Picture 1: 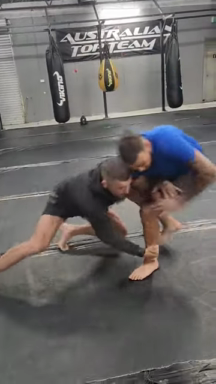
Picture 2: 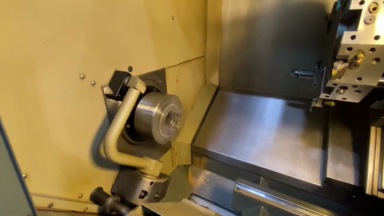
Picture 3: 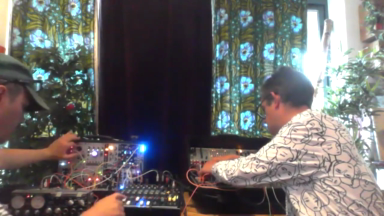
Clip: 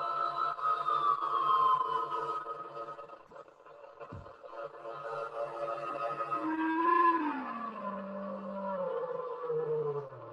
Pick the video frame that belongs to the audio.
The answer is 3